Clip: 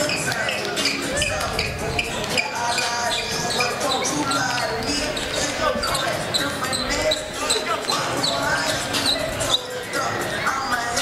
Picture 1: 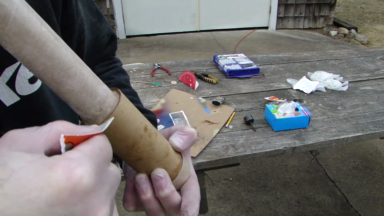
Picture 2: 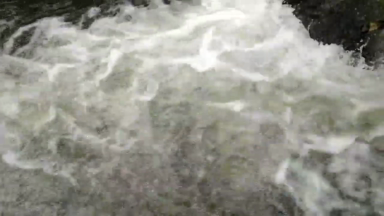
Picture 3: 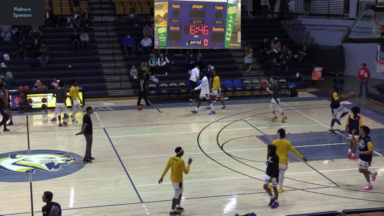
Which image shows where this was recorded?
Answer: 3